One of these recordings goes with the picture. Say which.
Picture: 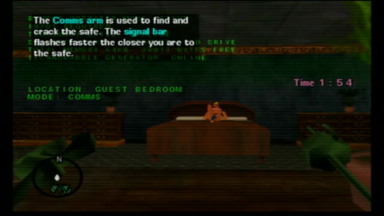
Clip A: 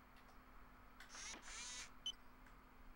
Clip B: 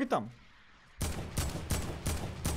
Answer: A